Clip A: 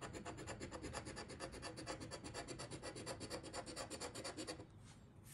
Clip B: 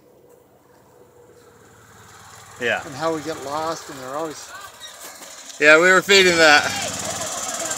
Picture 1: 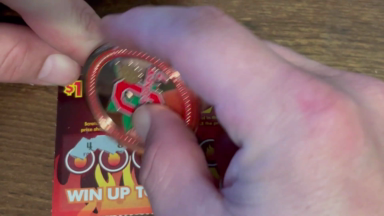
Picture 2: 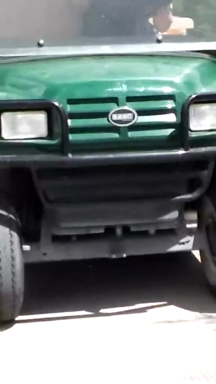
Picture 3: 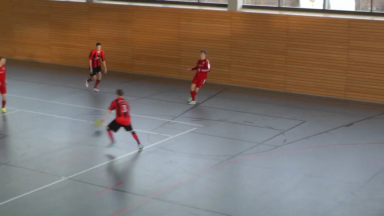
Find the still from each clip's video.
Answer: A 1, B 2